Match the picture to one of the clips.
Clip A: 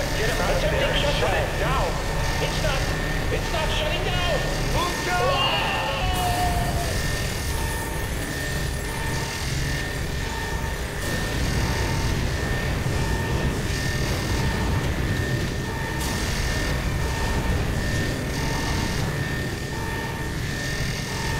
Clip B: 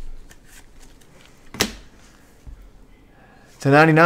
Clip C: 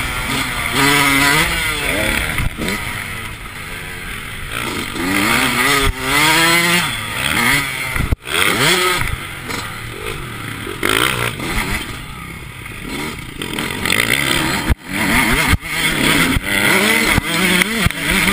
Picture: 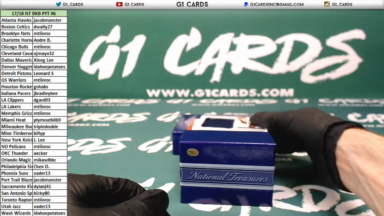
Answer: B